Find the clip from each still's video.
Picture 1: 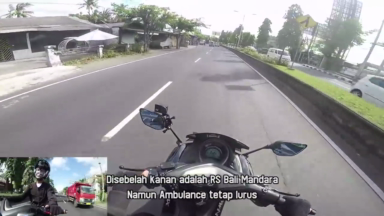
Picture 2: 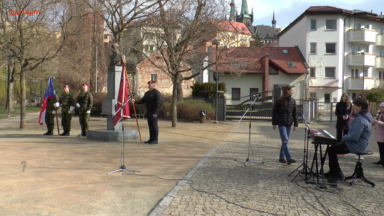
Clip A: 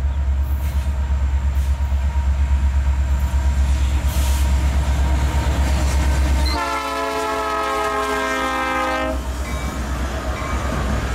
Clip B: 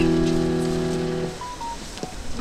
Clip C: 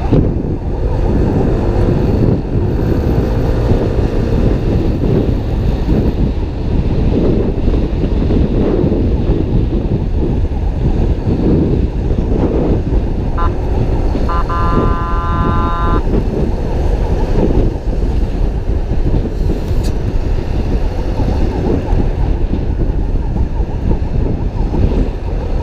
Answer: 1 C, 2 B